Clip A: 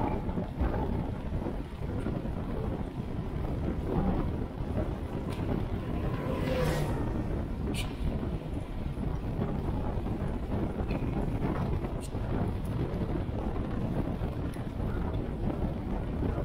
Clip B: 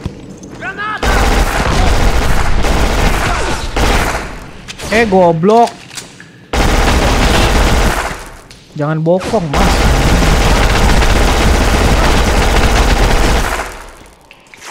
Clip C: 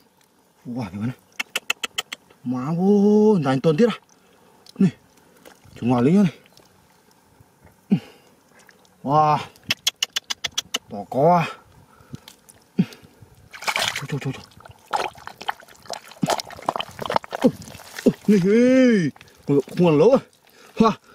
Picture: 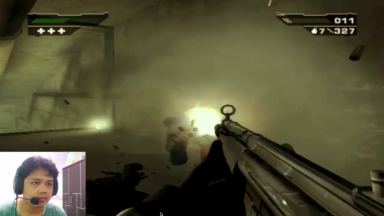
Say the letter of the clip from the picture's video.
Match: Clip B